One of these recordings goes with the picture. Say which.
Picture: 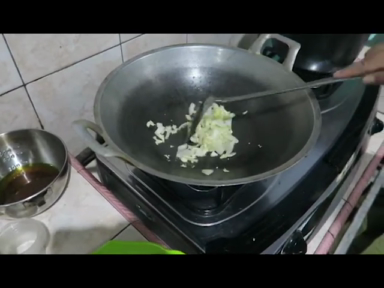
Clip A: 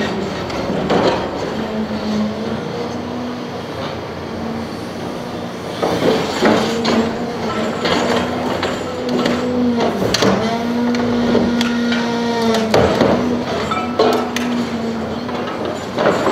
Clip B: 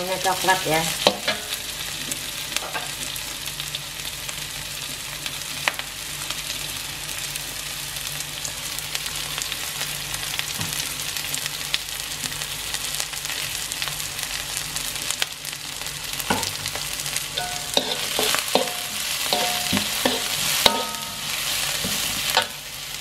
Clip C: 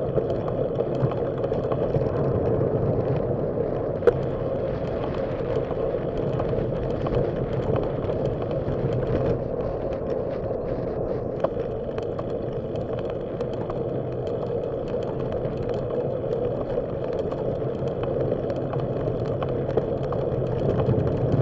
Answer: B